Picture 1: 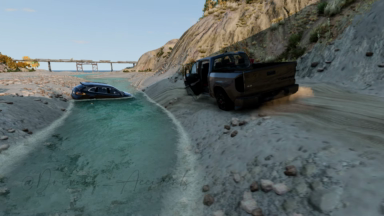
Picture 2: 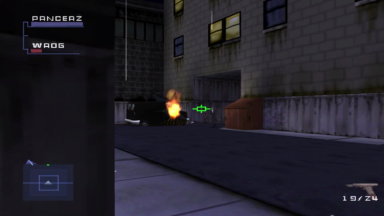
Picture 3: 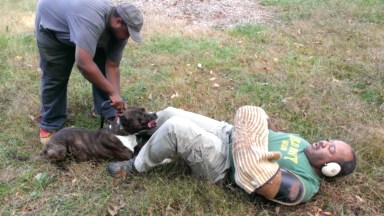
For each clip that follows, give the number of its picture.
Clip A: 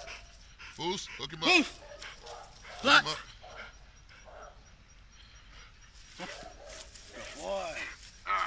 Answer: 3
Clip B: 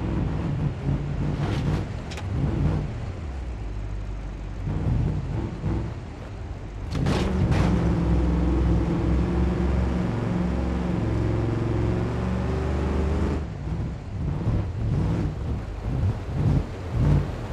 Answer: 1